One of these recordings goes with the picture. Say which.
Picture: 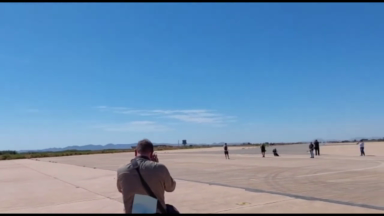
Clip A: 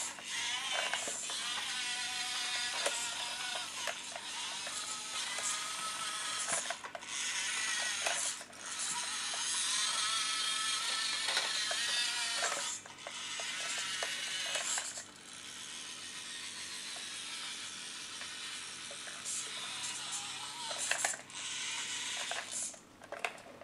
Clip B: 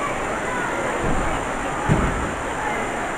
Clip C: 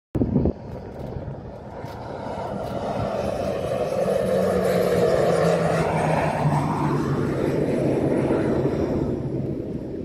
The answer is C